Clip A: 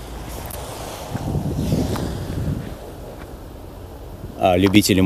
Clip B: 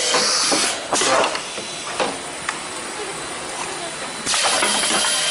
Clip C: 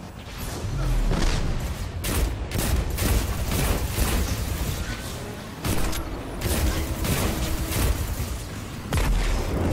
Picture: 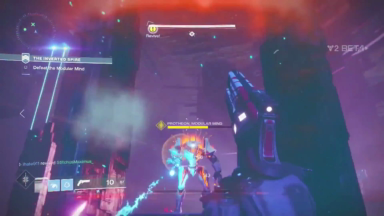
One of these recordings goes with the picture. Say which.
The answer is C